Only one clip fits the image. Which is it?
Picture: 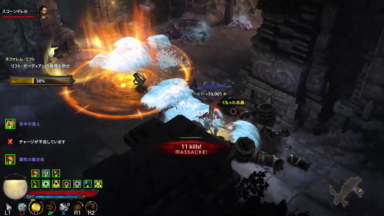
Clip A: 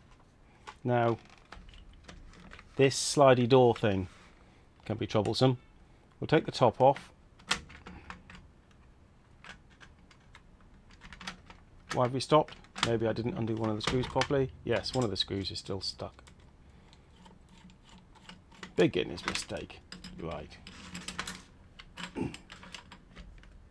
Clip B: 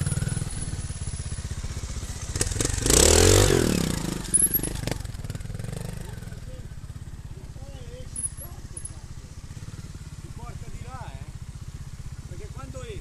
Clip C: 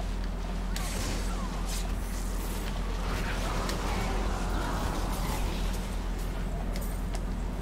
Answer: C